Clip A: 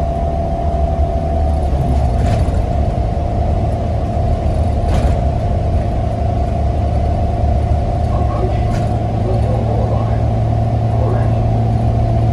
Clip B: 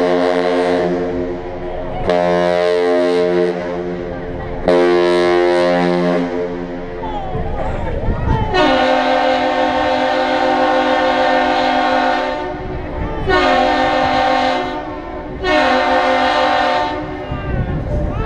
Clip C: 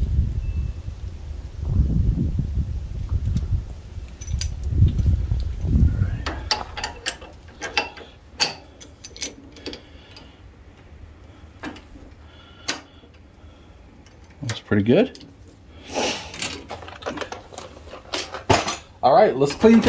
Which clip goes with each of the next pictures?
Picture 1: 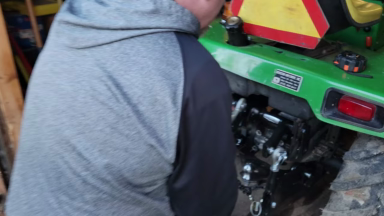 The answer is C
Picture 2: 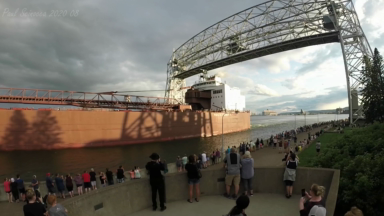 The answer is B